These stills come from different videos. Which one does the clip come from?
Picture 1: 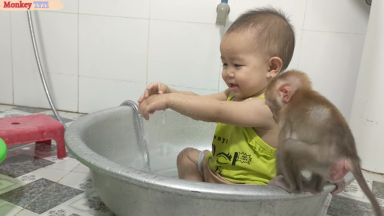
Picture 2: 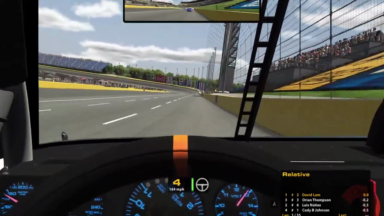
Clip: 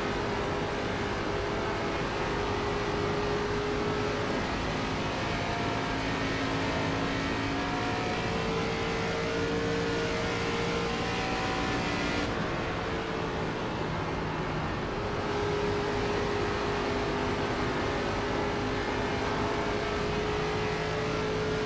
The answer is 2